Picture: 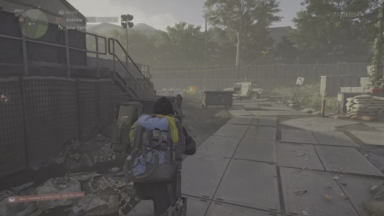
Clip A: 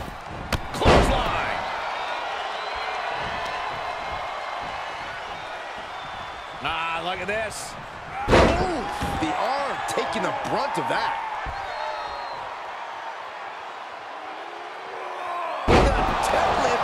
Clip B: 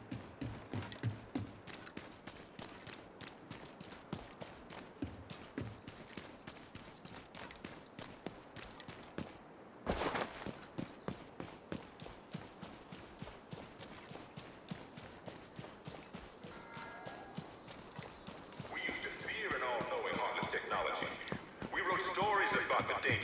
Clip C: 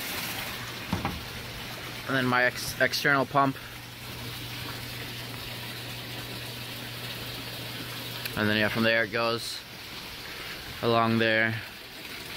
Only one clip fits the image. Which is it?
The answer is B